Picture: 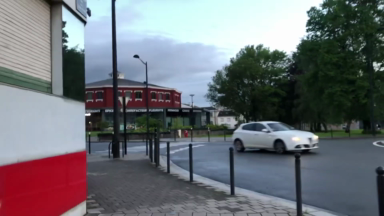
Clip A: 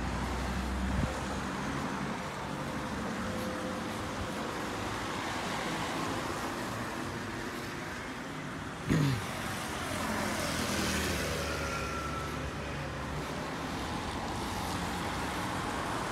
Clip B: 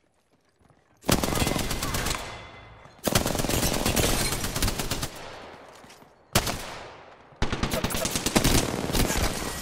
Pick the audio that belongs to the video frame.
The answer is A